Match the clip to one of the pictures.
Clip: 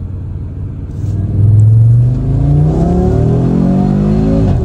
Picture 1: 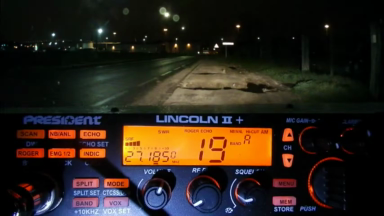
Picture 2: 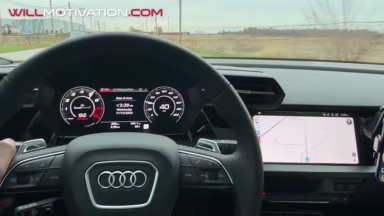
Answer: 2